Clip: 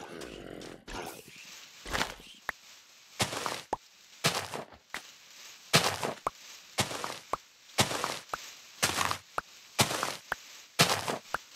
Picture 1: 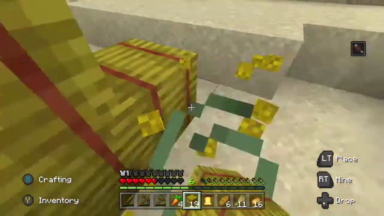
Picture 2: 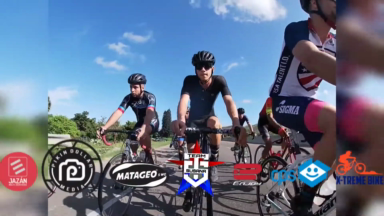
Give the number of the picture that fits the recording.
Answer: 1